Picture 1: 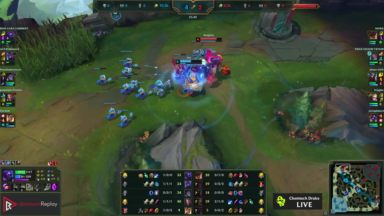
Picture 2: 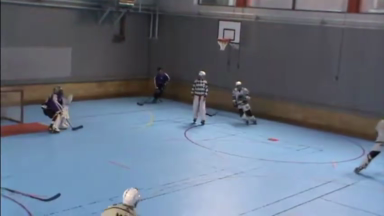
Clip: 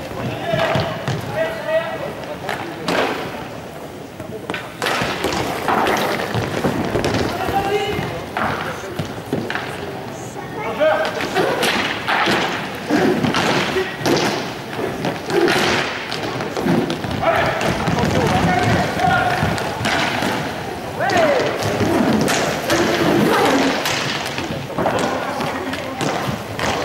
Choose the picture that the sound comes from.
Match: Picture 2